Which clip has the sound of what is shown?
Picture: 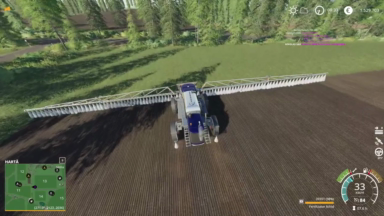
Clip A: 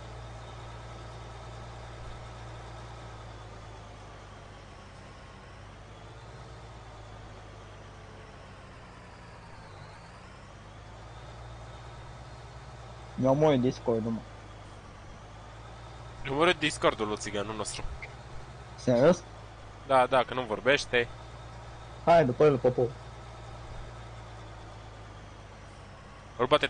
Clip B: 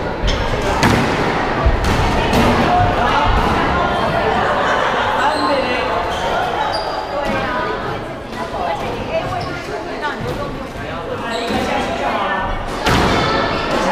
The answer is A